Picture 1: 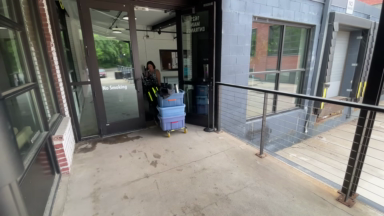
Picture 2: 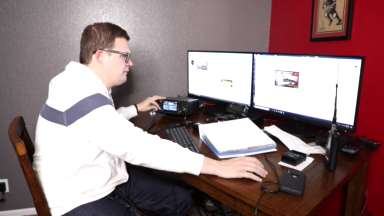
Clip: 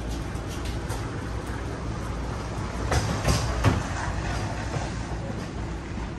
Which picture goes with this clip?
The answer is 1